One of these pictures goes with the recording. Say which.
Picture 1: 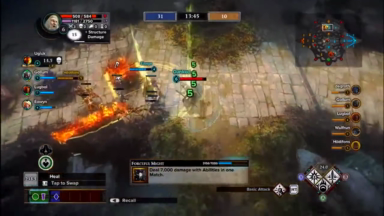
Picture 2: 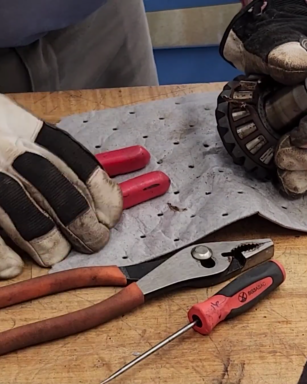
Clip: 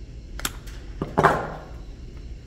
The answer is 2